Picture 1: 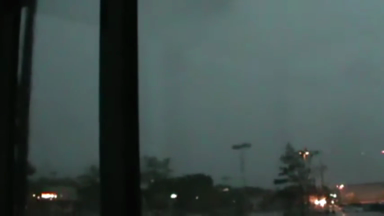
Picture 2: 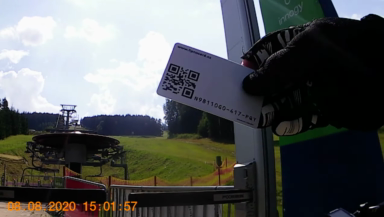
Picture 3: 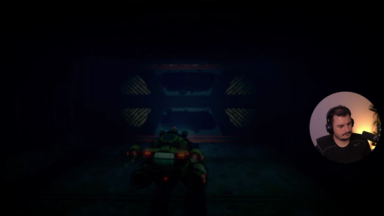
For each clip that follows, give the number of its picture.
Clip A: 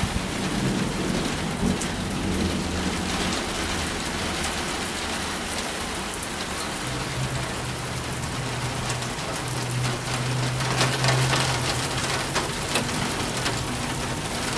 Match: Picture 1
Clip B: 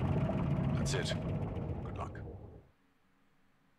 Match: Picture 3